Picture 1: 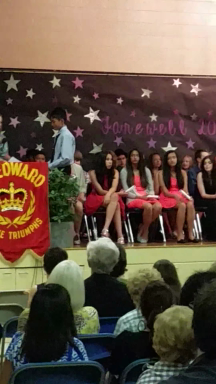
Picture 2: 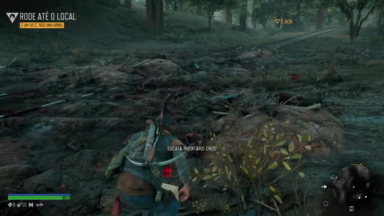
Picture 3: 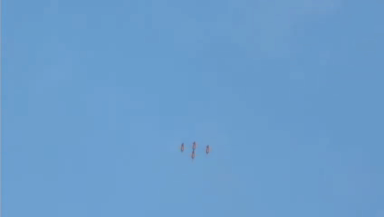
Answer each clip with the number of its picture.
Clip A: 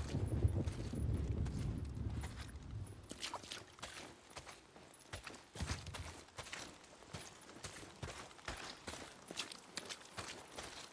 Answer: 2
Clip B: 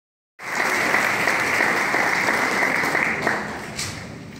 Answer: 1